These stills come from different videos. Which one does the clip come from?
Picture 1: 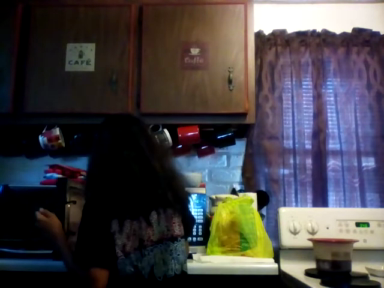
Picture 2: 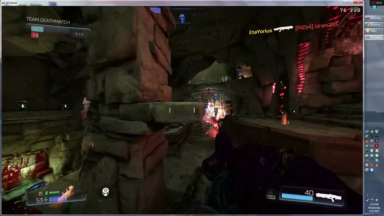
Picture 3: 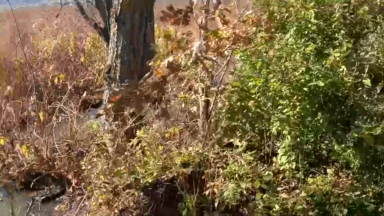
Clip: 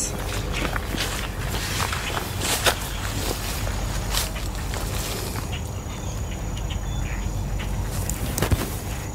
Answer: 3